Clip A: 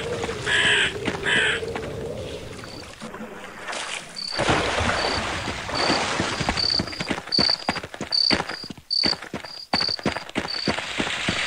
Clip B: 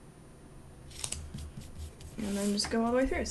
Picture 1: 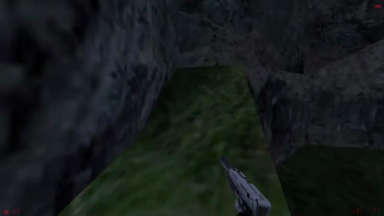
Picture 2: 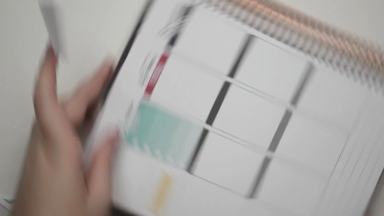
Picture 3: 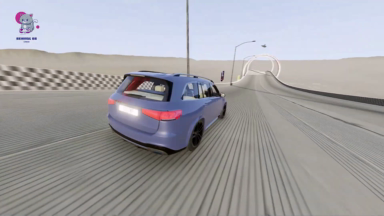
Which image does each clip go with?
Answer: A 1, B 2